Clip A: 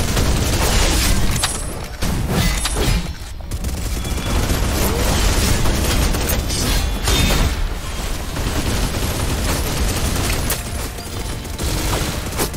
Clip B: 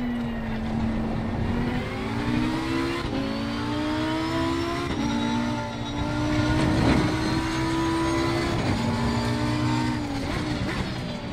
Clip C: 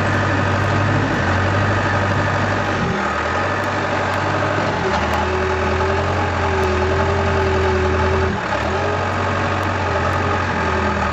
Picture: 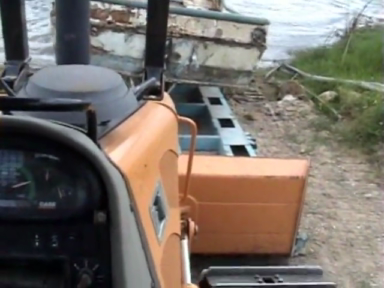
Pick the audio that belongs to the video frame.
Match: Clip C